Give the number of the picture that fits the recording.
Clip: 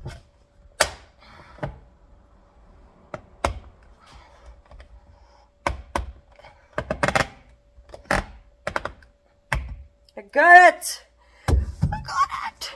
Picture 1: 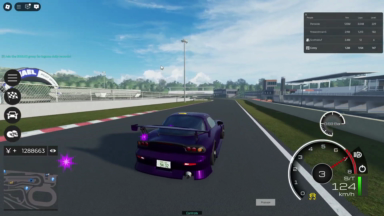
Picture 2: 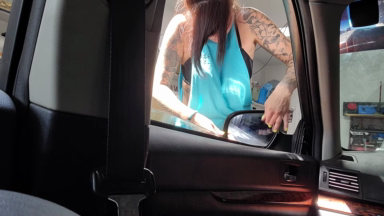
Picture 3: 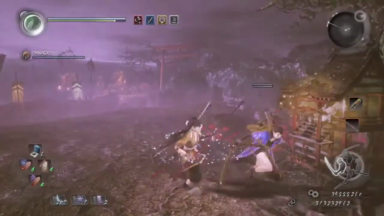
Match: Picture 2